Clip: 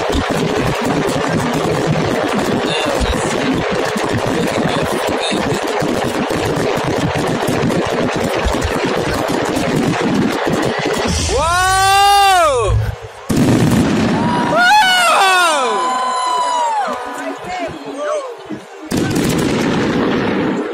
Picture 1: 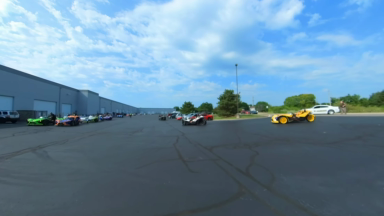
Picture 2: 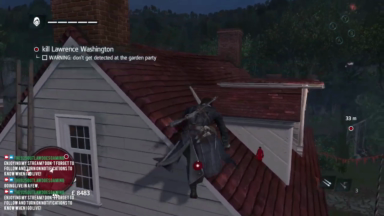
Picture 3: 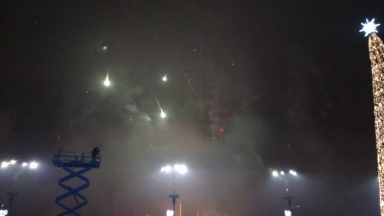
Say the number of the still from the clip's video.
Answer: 3